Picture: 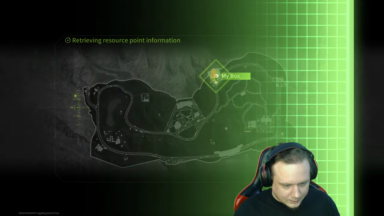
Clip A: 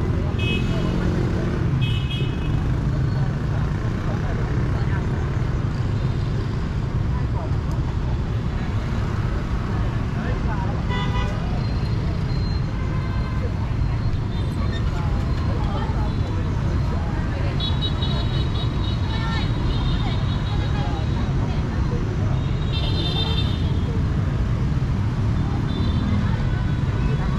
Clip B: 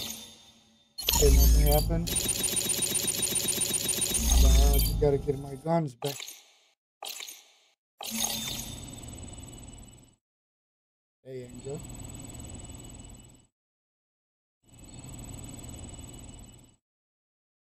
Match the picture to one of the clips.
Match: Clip B